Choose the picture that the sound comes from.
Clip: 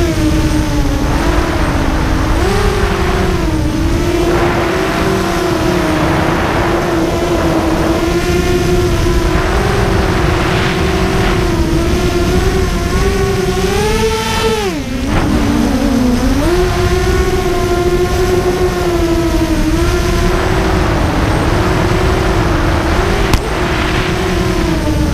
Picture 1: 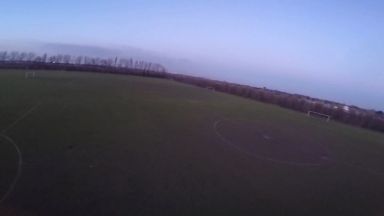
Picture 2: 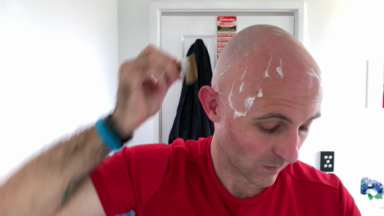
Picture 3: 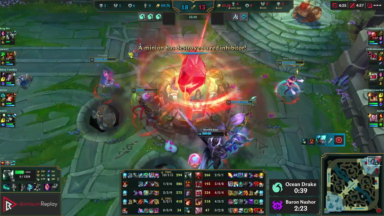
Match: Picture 1